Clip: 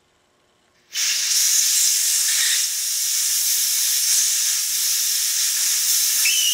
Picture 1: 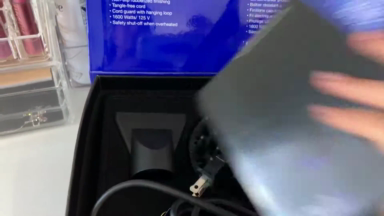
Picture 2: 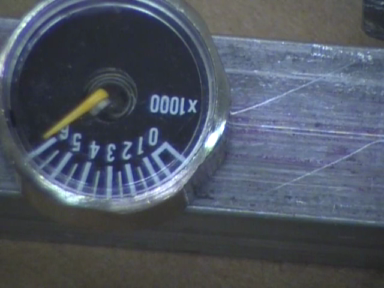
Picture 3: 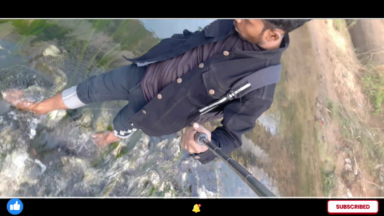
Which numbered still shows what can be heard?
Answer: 2